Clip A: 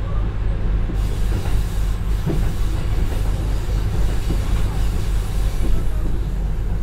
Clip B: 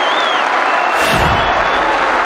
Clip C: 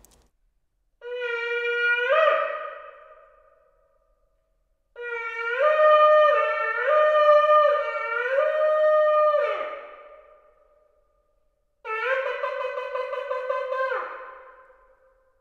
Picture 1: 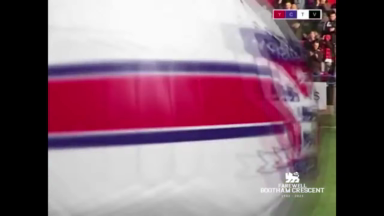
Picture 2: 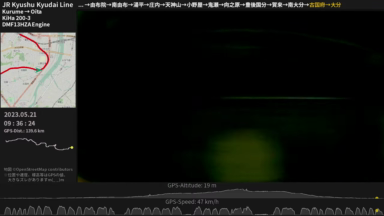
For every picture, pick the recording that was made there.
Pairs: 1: B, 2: A